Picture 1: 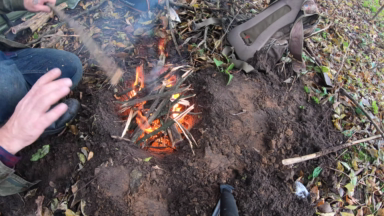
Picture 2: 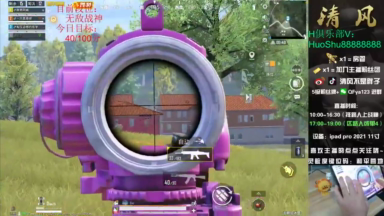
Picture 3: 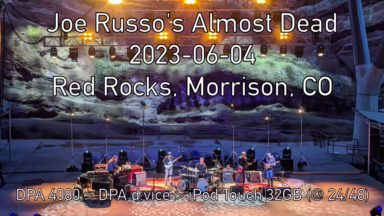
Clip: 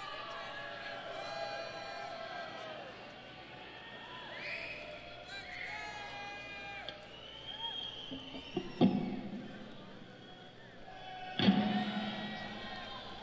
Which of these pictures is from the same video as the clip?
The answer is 3